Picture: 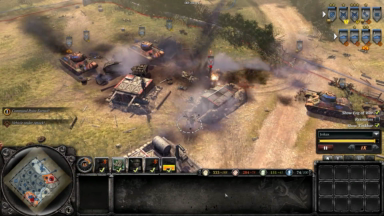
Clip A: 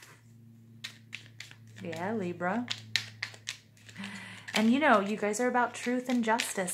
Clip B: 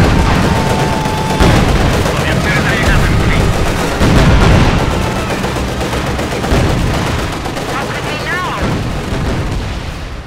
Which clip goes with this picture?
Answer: B